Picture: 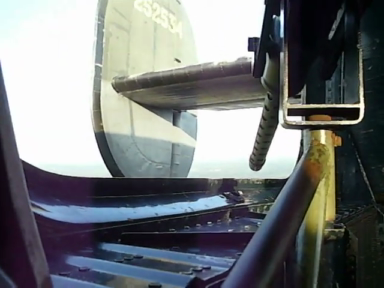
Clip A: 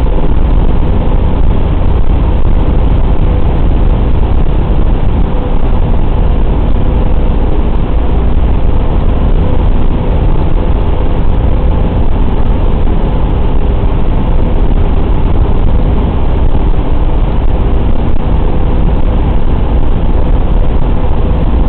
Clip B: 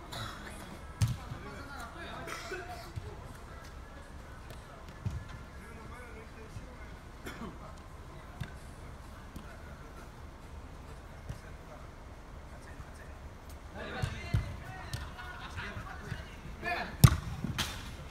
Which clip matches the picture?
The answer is A